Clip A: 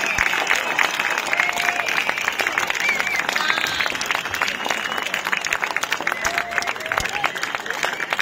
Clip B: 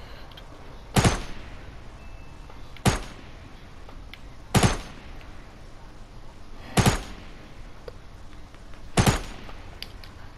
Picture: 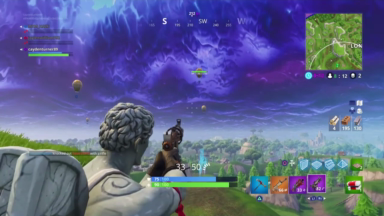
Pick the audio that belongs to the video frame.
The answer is B